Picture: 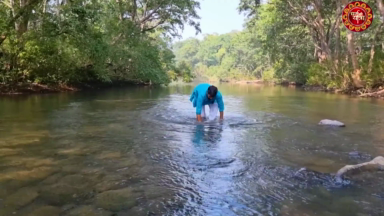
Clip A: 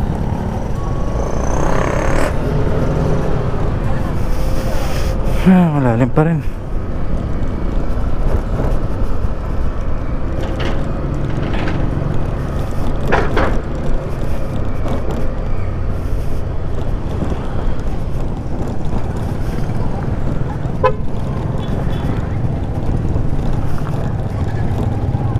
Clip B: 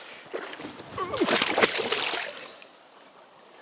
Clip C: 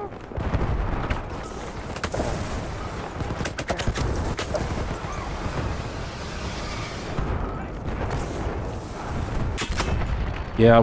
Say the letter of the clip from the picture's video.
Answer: B